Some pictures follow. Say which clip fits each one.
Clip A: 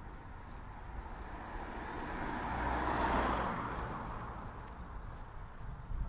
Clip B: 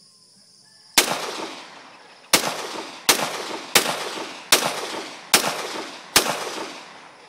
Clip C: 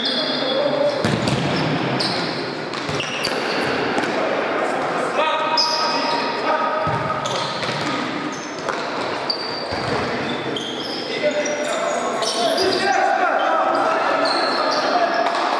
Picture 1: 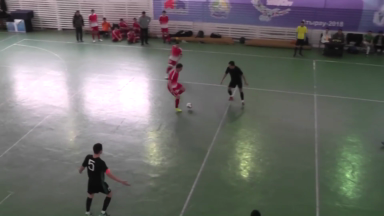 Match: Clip C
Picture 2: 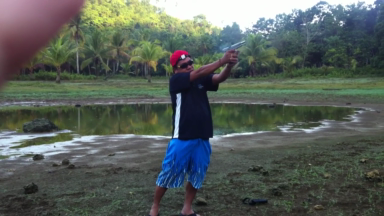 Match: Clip B